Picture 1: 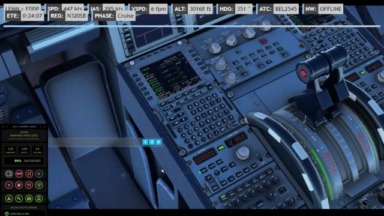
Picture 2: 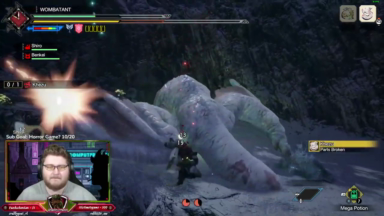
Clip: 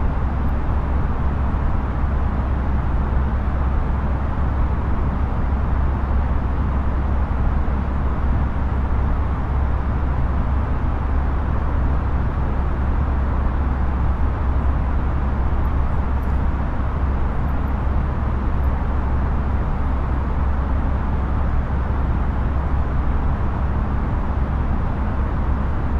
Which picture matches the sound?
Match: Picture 1